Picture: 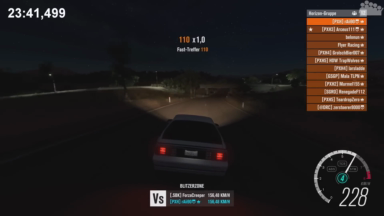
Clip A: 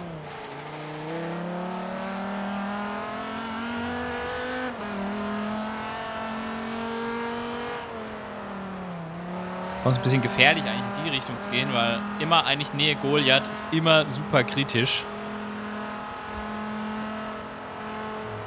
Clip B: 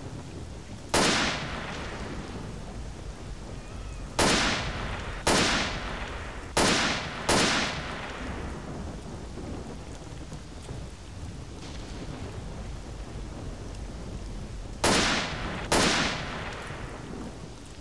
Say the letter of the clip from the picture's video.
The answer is A